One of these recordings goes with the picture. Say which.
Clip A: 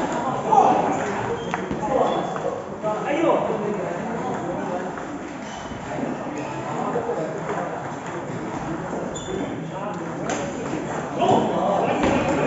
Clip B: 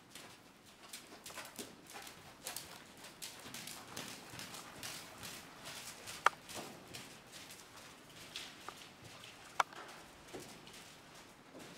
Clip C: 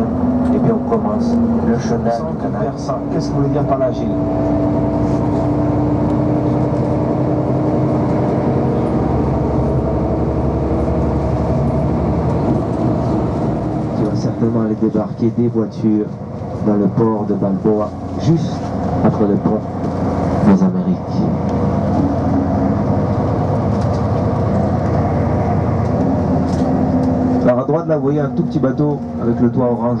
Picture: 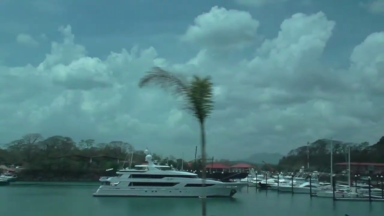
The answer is C